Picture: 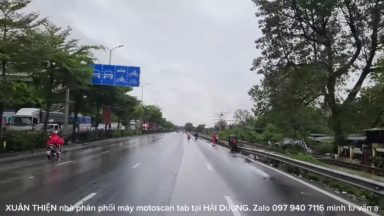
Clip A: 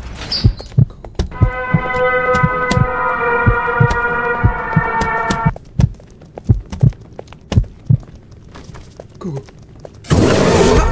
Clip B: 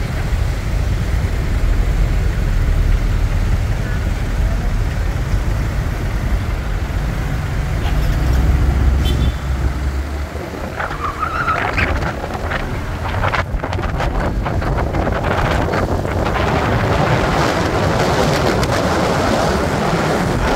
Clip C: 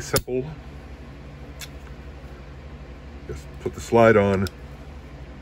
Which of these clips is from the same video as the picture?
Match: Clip B